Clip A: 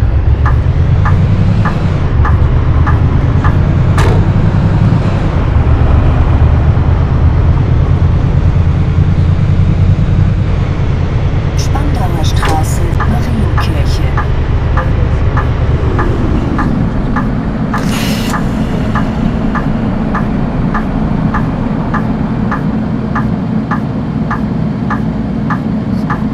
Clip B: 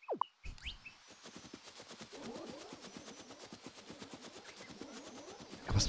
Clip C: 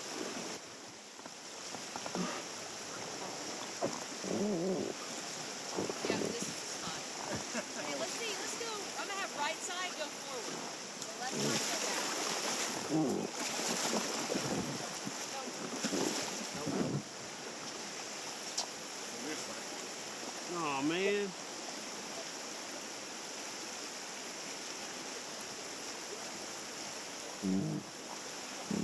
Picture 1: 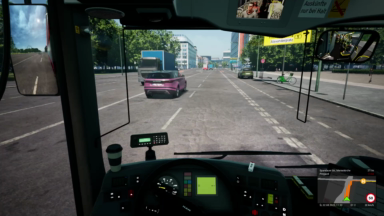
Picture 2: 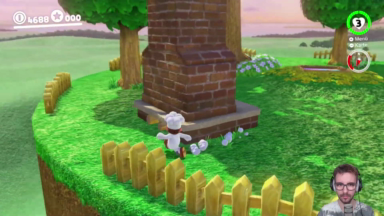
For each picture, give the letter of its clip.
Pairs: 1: A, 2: B